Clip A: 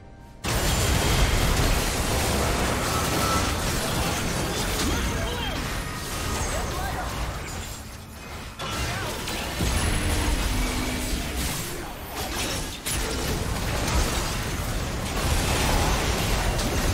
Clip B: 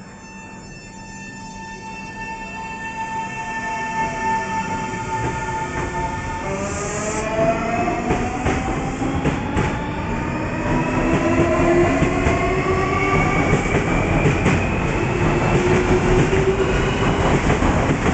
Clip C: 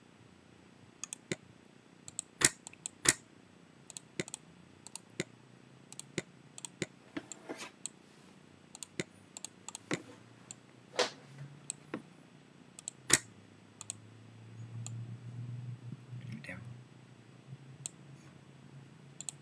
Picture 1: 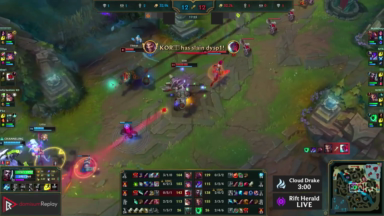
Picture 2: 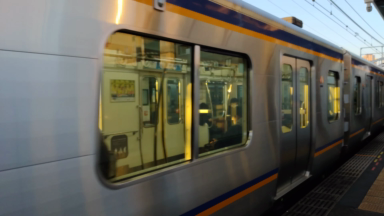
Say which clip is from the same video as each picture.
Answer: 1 A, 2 B